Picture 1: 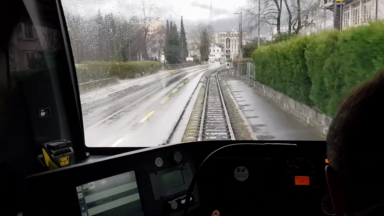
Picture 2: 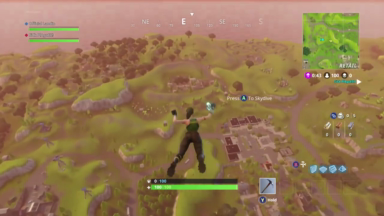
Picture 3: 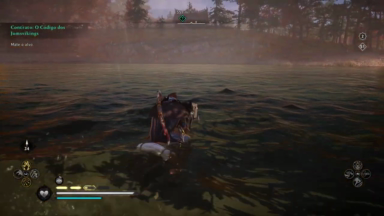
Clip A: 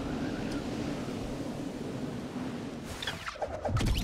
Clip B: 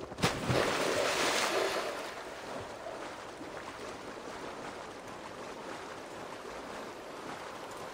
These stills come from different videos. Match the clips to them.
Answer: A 2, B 3